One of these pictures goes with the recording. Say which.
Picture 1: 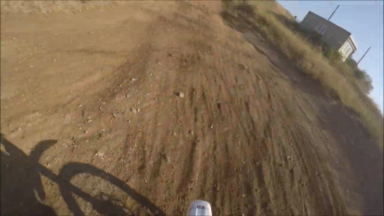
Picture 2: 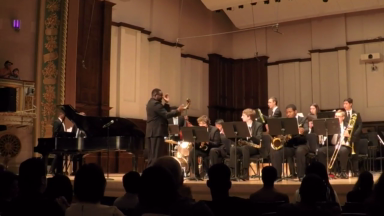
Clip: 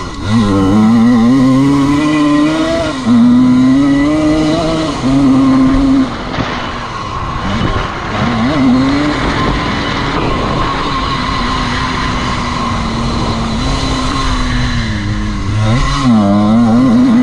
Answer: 1